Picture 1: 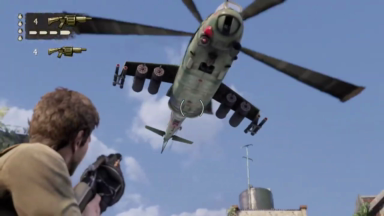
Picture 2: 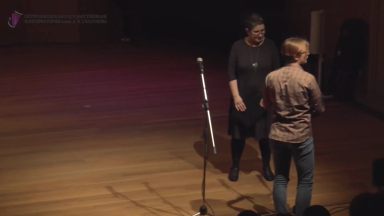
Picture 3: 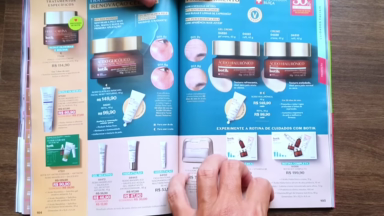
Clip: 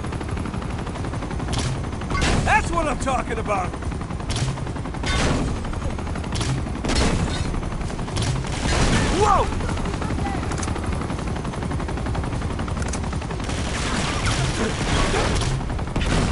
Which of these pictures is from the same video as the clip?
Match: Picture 1